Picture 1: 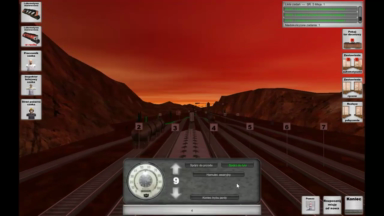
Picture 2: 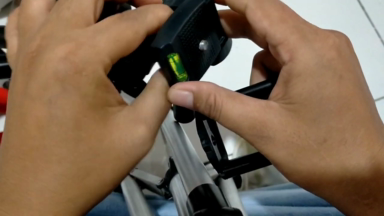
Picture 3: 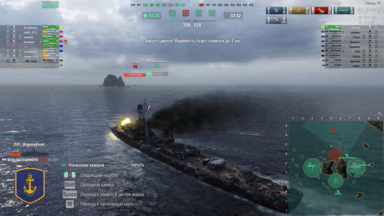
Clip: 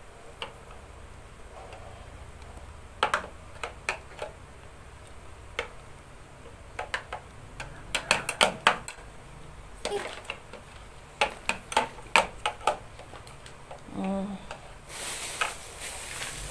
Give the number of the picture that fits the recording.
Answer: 2